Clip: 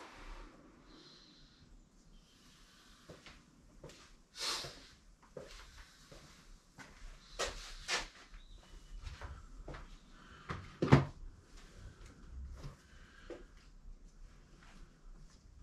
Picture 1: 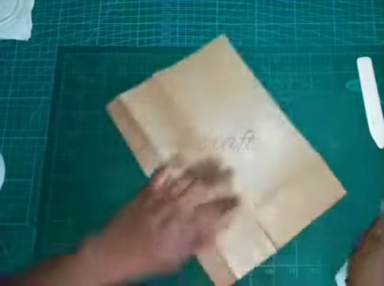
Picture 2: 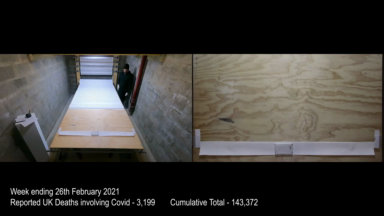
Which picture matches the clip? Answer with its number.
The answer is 2